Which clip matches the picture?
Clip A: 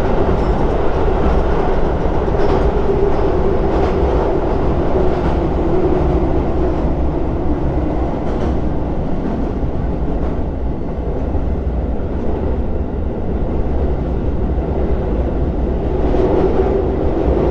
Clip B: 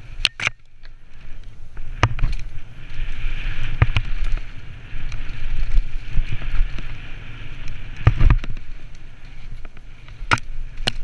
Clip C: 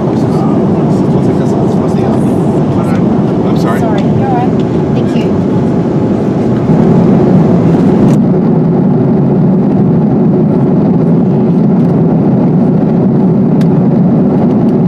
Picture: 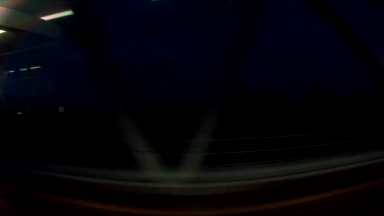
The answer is A